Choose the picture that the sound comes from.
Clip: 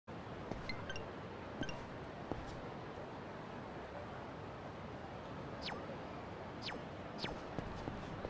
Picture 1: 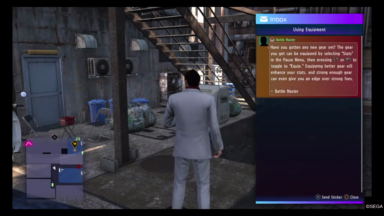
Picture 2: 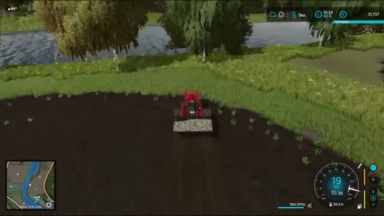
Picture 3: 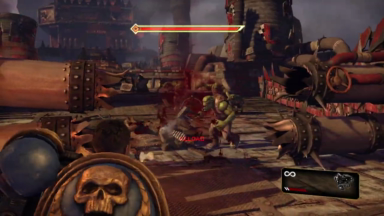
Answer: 1